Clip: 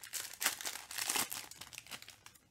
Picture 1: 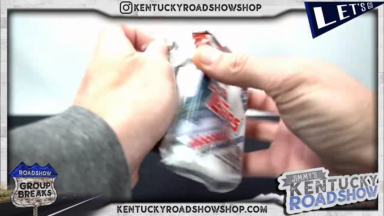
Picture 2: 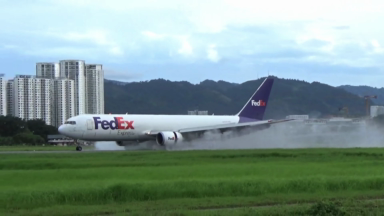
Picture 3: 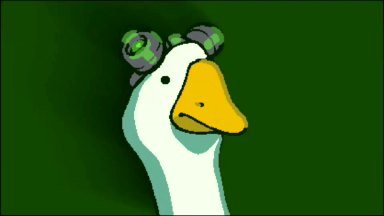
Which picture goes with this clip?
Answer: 1